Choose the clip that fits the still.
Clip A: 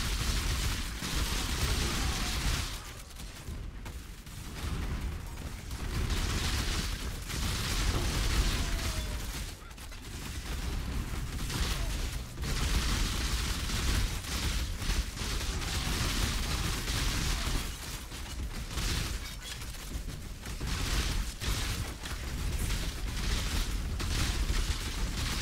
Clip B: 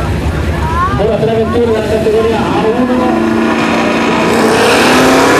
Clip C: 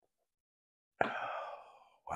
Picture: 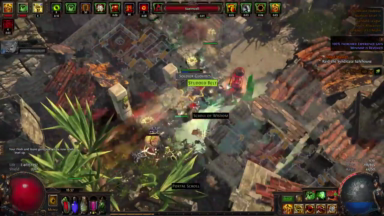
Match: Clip A